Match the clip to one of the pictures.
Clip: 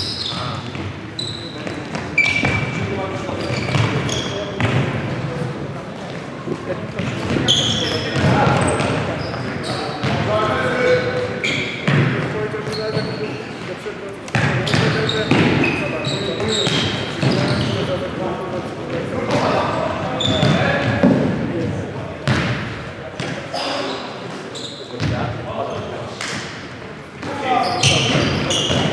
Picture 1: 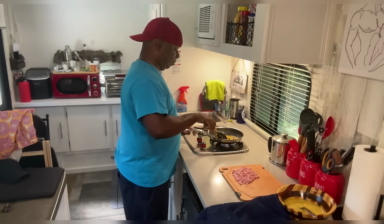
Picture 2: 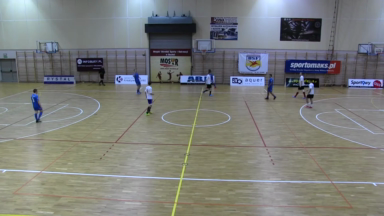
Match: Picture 2